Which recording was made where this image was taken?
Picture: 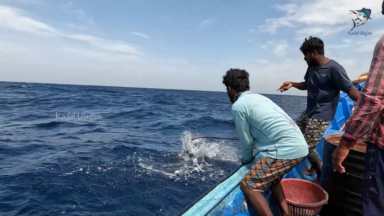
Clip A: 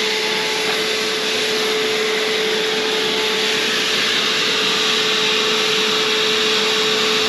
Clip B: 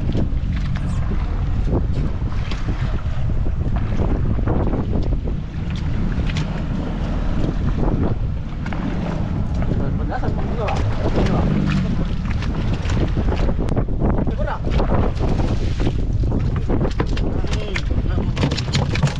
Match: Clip B